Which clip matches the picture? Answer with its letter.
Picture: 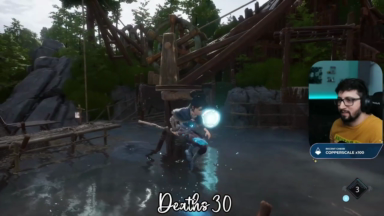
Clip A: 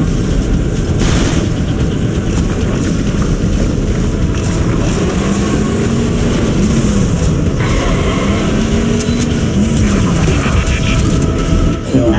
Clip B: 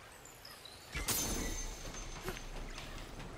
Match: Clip B